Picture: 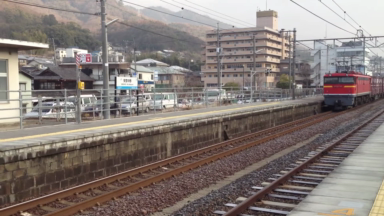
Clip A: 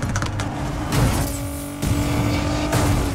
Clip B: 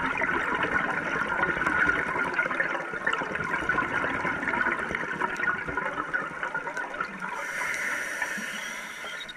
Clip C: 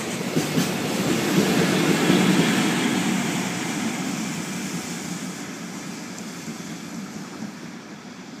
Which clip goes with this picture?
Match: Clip C